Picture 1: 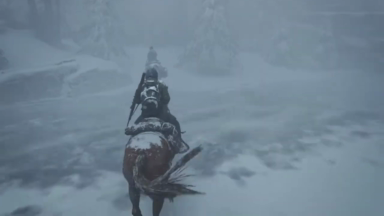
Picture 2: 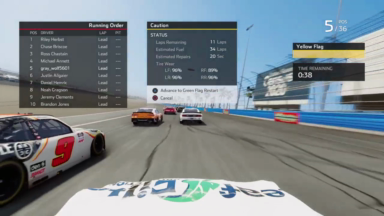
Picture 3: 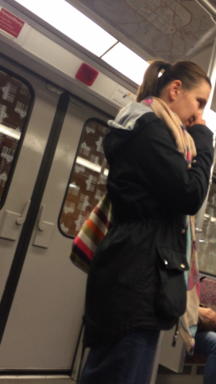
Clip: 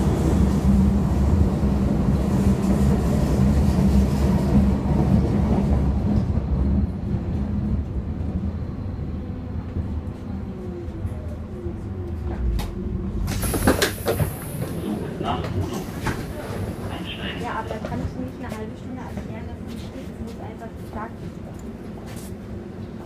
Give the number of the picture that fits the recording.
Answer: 3